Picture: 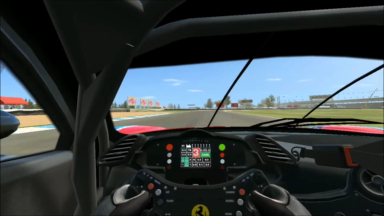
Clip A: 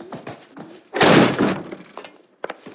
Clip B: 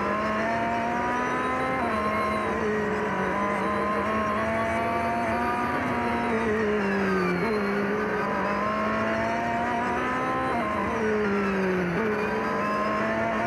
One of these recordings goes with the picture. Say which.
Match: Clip B